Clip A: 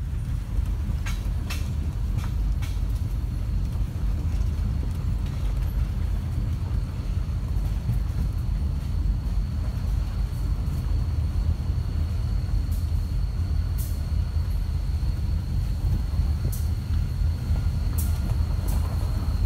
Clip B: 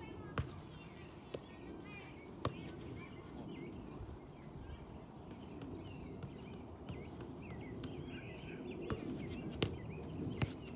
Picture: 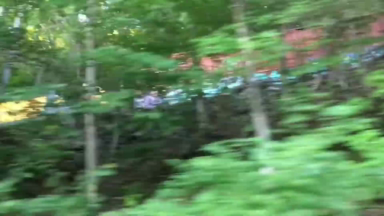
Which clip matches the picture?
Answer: A